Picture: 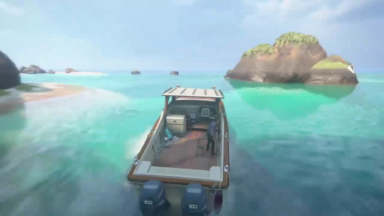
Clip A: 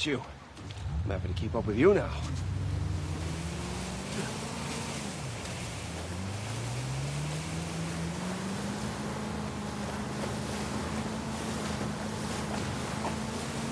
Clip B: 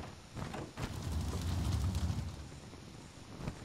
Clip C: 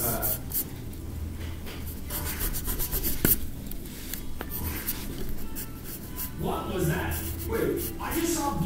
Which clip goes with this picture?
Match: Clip A